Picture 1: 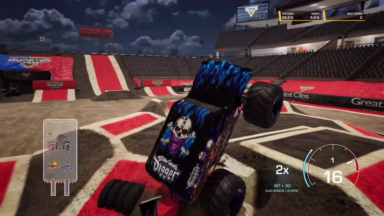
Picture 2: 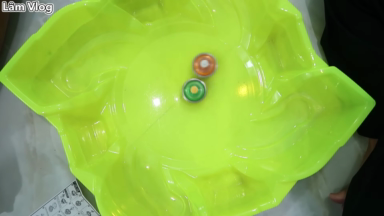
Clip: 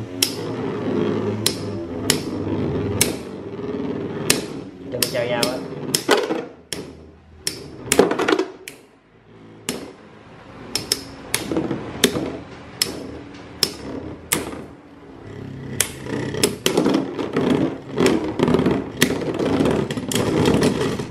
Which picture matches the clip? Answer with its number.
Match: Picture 2